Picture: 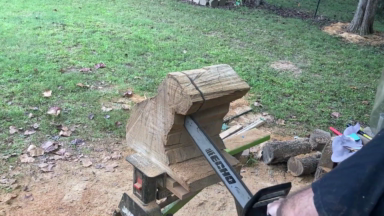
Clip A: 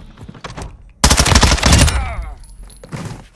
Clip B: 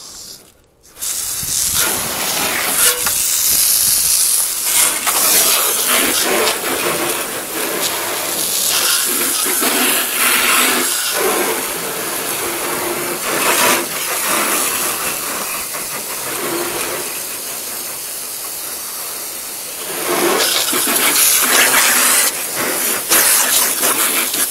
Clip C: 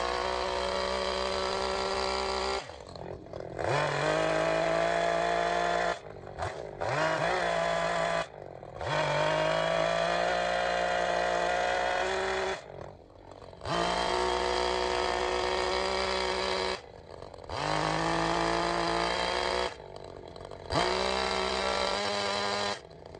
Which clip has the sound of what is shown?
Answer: C